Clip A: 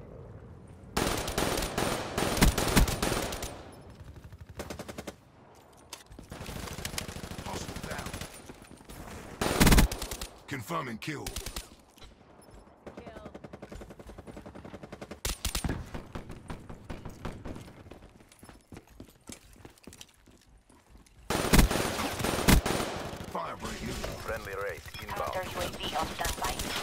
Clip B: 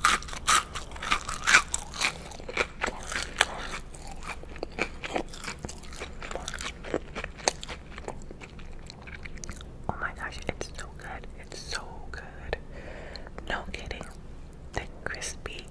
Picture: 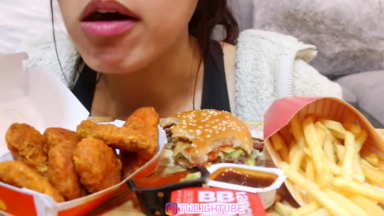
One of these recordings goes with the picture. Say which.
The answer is B